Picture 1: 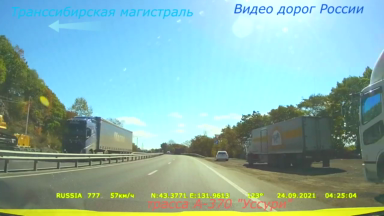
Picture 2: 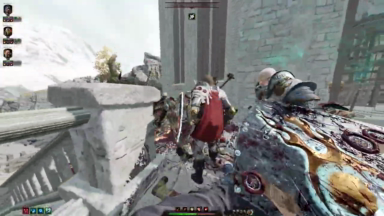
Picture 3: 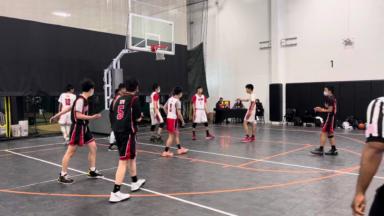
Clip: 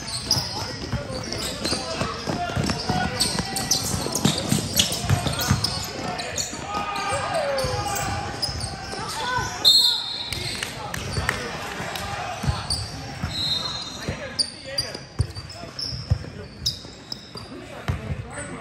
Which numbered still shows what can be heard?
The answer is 3